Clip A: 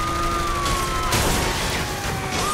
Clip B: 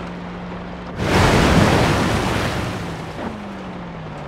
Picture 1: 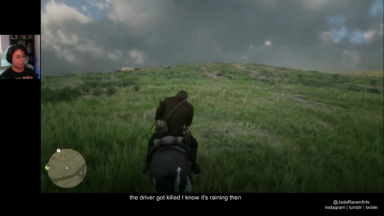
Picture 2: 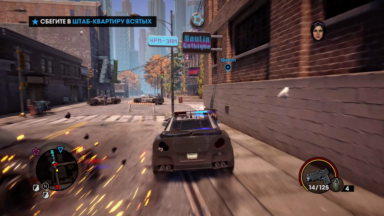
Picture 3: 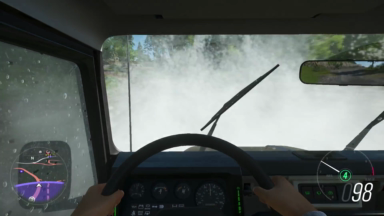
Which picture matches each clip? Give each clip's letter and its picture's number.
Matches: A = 2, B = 3